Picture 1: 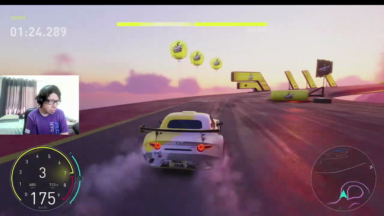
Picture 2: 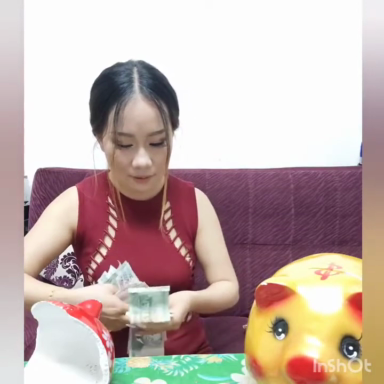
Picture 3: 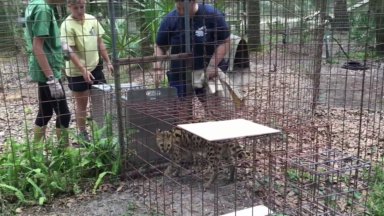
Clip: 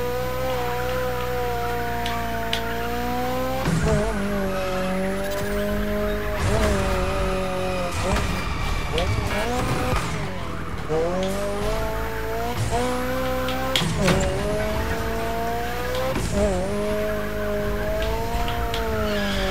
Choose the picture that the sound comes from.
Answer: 1